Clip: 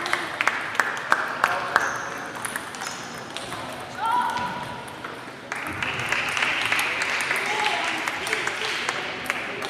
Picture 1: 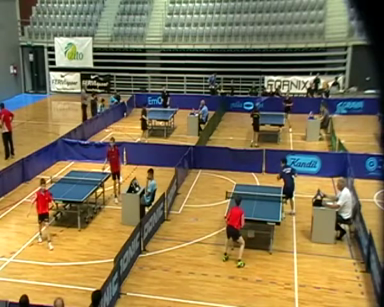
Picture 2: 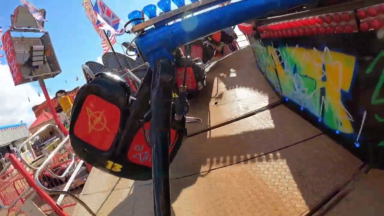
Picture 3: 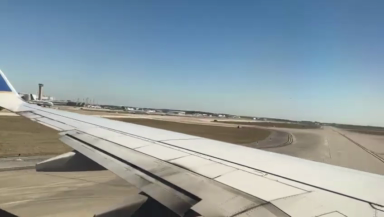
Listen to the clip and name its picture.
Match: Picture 1